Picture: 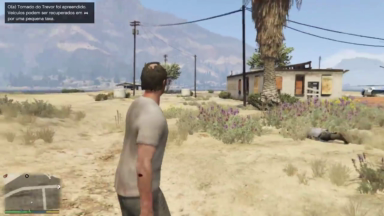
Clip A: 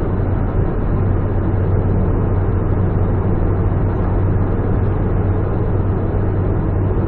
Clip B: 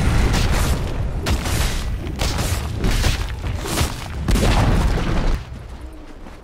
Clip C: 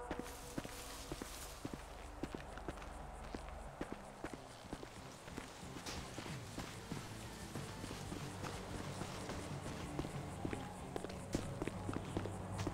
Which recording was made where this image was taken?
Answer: C